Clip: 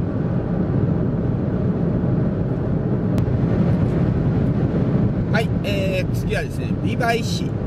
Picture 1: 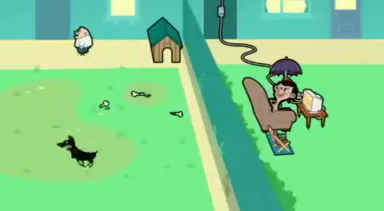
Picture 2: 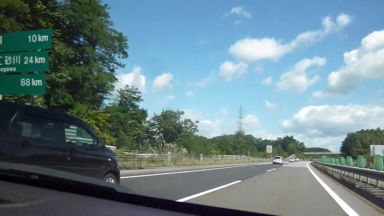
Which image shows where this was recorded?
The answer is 2